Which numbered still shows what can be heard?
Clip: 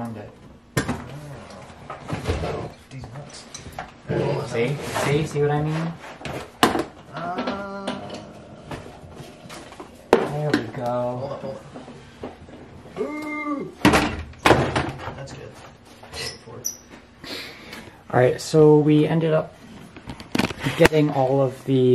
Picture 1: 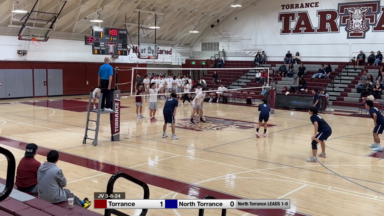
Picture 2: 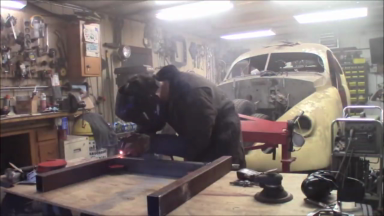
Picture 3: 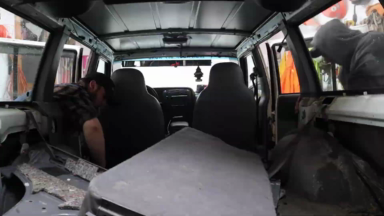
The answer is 3